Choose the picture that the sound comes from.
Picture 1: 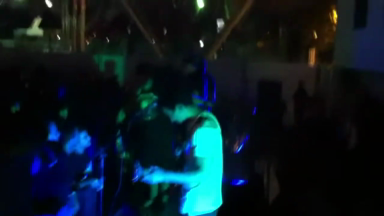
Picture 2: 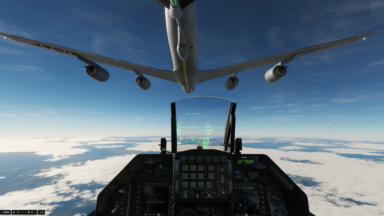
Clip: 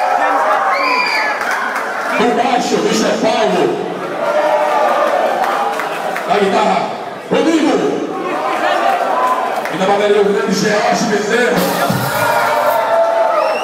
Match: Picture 1